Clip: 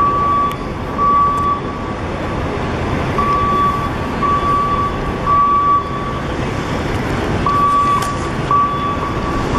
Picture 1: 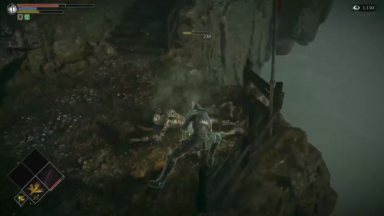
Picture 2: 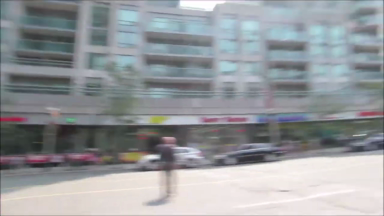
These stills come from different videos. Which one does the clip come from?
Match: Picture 2